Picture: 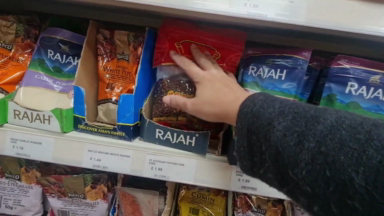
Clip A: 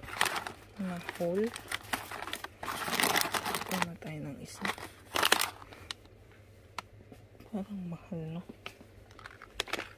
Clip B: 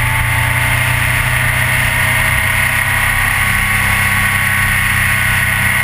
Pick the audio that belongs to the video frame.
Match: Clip A